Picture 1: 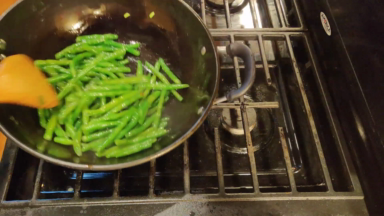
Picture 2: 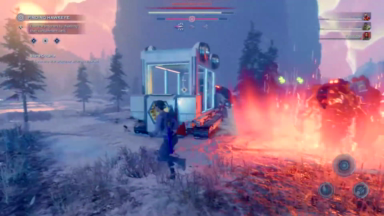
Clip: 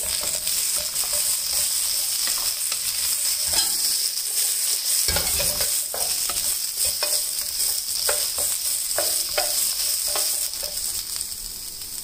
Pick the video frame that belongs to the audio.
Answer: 1